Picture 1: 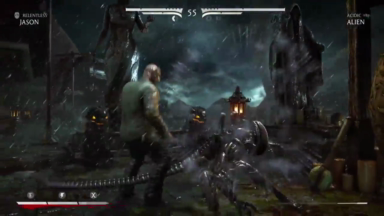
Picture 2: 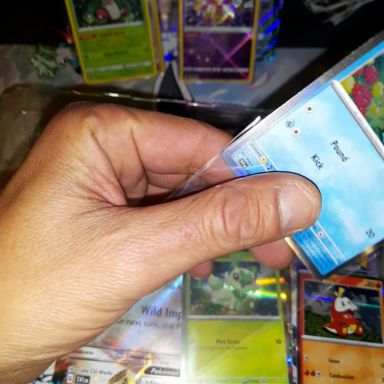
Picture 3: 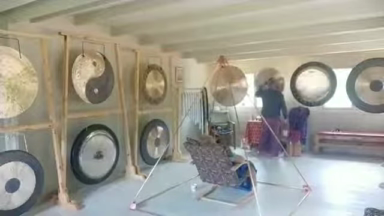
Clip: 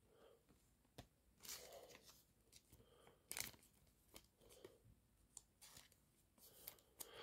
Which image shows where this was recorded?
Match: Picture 2